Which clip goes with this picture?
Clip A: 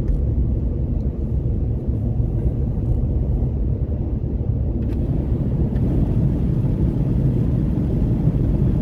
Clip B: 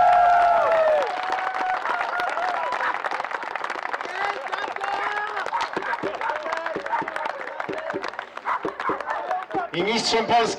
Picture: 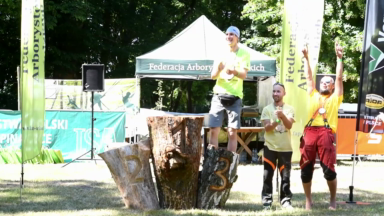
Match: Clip B